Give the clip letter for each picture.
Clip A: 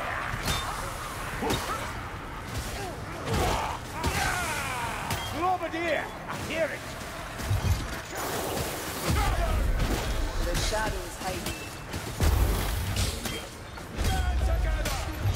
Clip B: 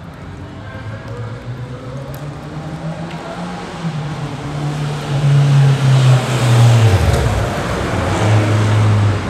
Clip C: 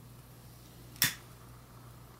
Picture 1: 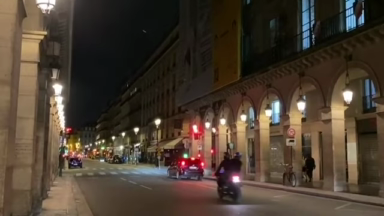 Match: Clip B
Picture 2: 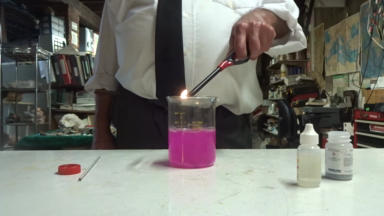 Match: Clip C